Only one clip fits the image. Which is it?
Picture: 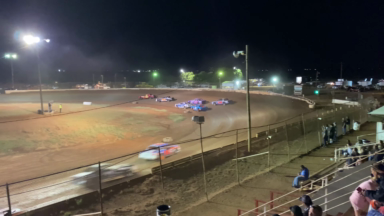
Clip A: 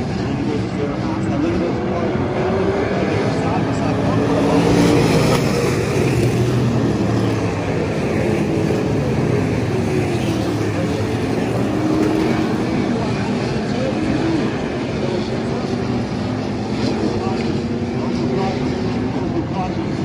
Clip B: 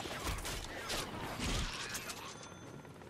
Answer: A